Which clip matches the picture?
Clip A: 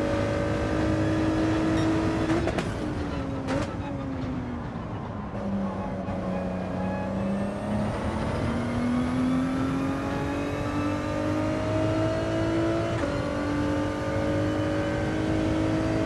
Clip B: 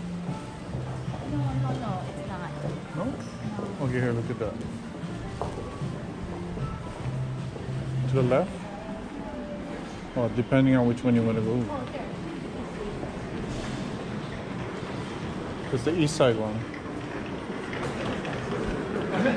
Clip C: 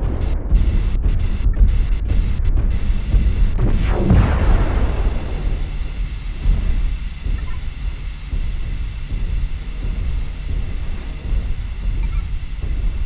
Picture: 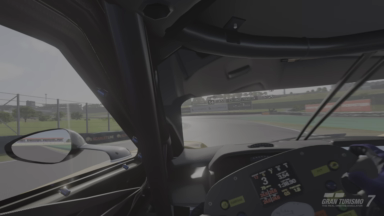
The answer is A